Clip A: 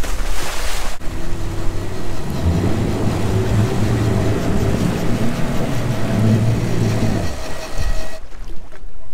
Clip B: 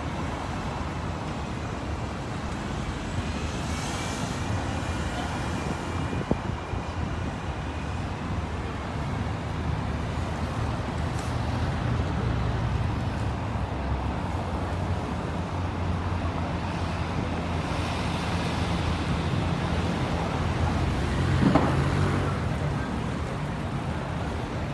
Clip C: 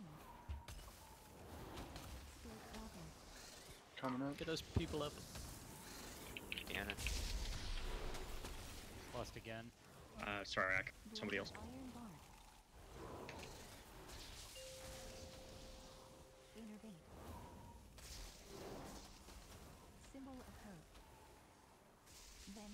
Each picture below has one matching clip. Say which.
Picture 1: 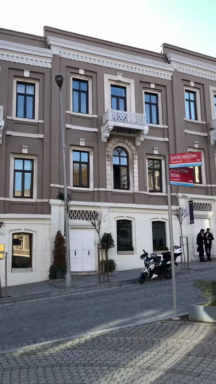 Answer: B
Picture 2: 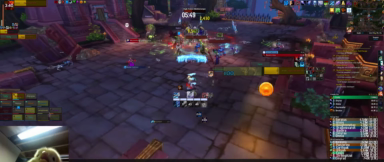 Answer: C